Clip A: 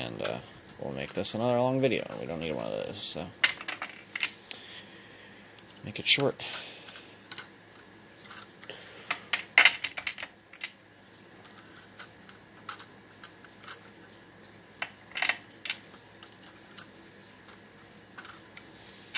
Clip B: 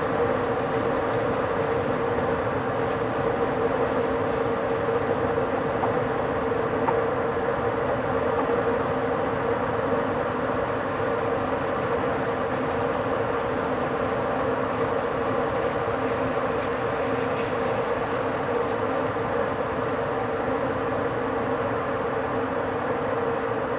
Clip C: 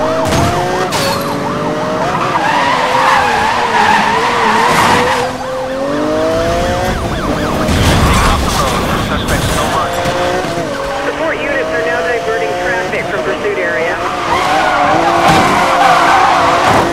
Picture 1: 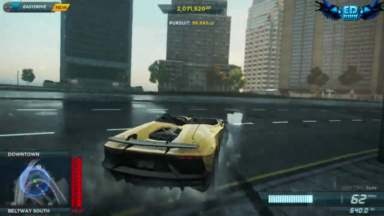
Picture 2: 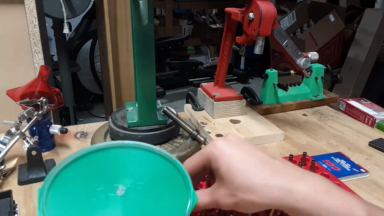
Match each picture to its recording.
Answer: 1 C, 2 A